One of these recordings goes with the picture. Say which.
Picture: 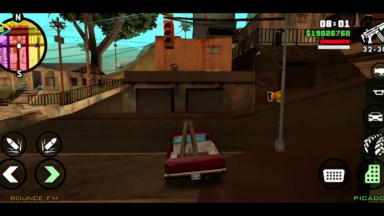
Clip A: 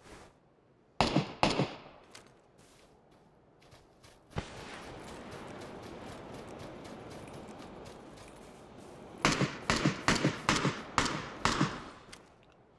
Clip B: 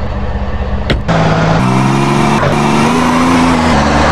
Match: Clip B